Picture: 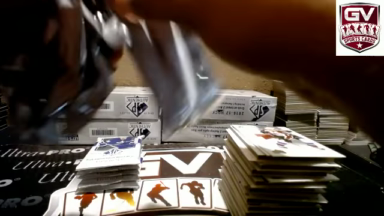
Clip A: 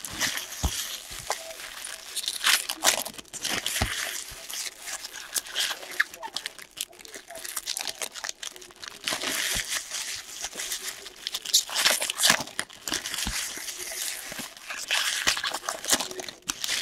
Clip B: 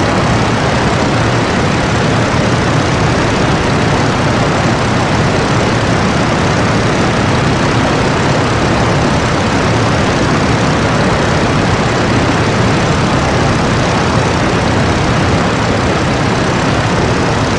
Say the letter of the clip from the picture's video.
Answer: A